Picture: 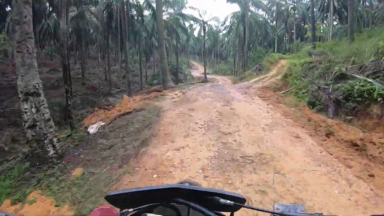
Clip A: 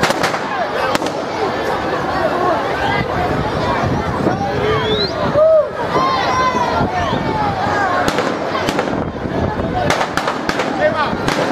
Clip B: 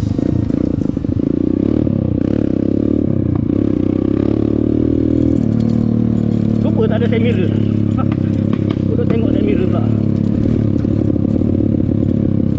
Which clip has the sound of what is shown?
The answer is B